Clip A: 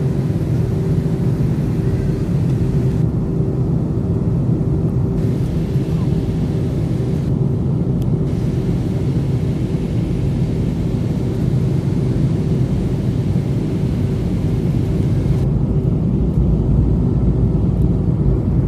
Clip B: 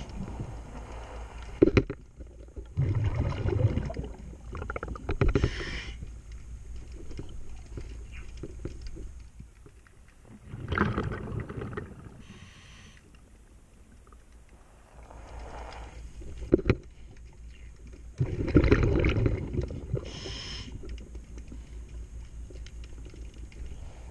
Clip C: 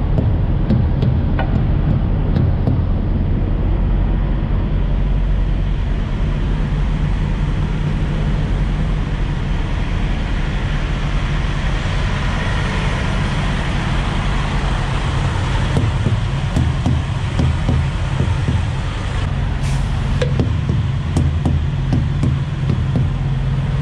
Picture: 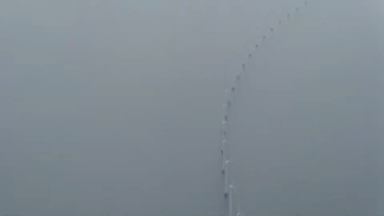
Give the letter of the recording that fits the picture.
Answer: A